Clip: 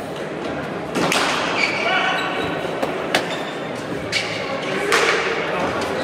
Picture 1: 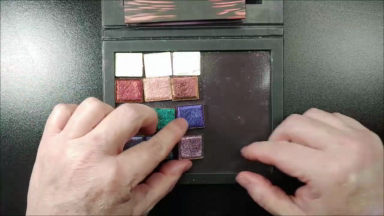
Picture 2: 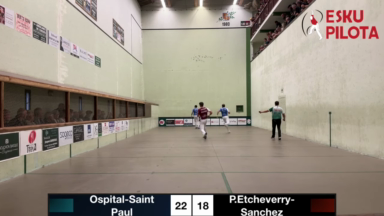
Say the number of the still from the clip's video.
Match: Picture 2